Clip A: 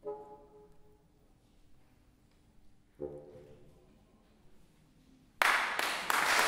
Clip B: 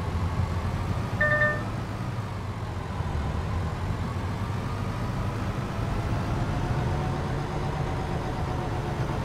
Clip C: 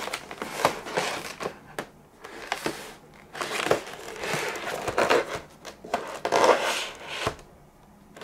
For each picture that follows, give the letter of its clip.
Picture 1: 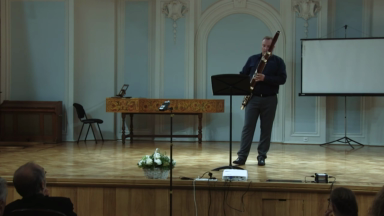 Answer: A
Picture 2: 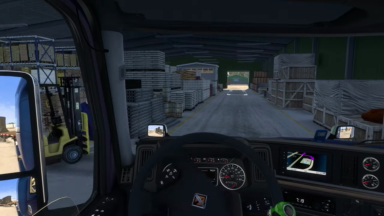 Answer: B